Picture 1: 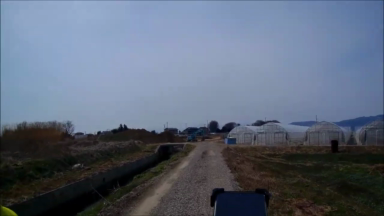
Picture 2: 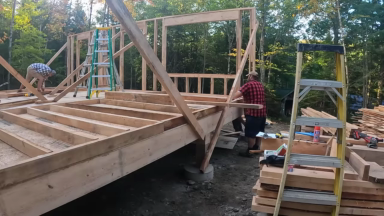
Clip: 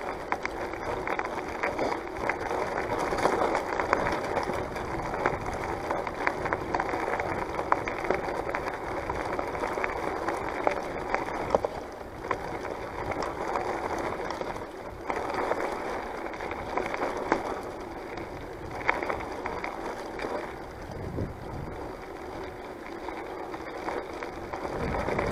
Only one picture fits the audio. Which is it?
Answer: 1